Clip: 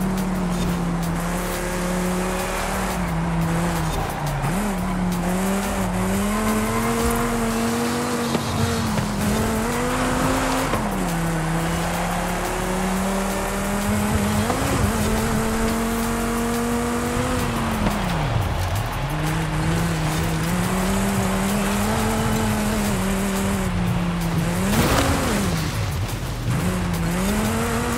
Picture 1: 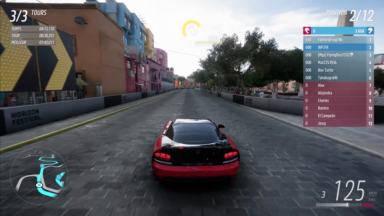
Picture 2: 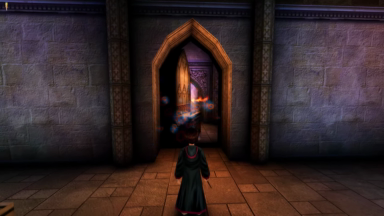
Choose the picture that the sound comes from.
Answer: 1